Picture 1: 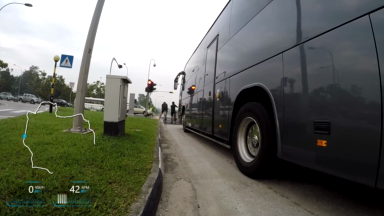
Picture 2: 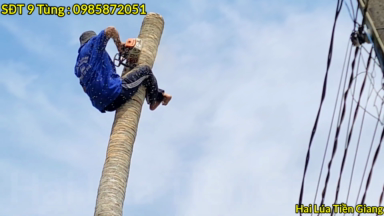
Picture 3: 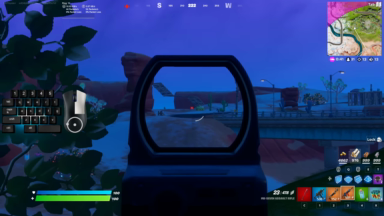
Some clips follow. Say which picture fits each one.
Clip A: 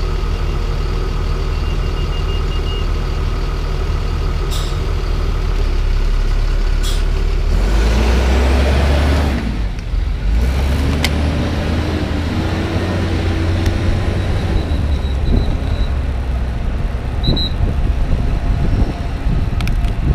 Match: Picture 1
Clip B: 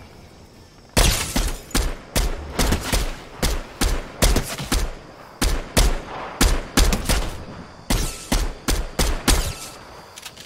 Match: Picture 3